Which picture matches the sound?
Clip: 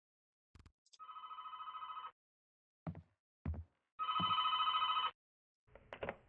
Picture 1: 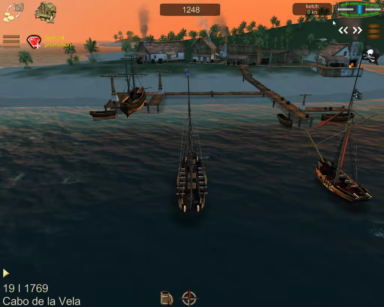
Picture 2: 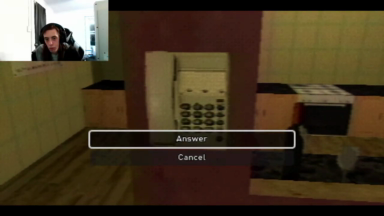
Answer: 2